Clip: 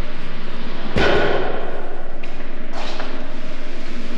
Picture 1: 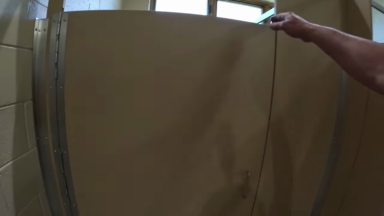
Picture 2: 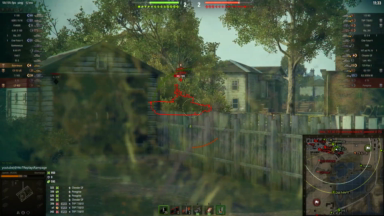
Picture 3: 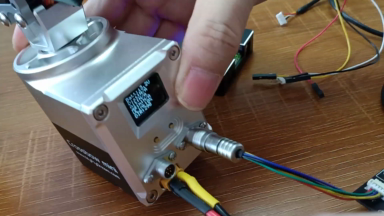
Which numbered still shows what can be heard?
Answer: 1